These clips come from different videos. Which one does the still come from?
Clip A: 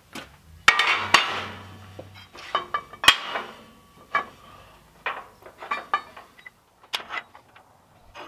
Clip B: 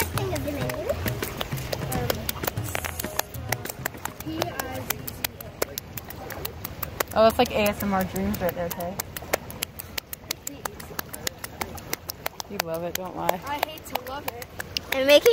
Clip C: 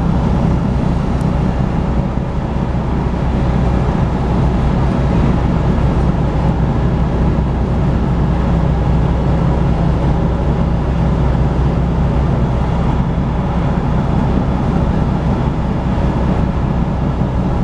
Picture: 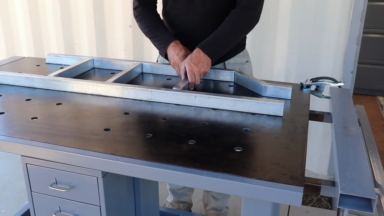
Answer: A